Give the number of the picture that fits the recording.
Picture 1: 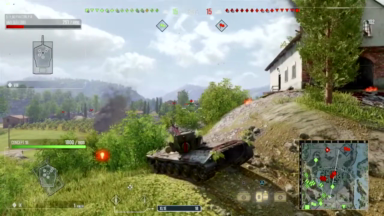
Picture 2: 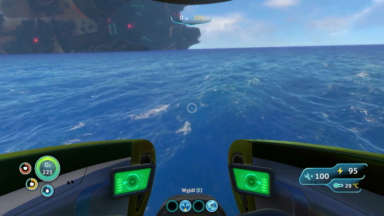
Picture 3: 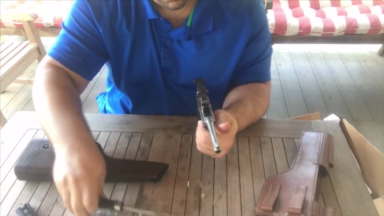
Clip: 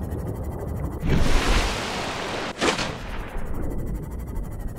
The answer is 2